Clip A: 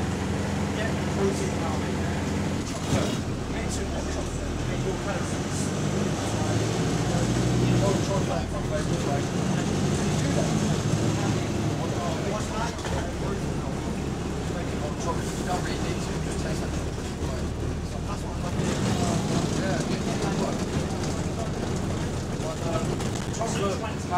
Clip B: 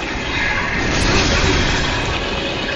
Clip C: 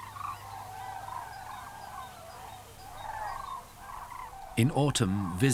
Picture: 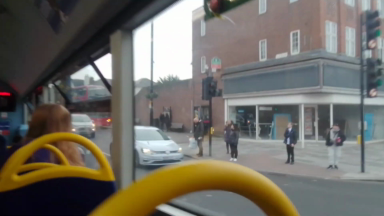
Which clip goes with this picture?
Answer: A